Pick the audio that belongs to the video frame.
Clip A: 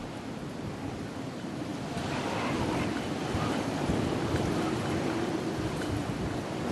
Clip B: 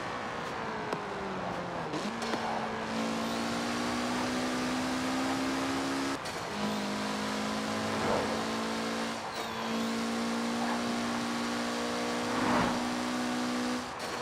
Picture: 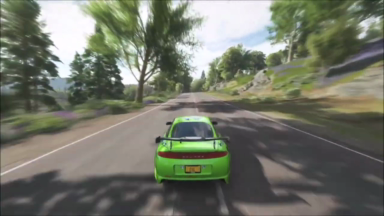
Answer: B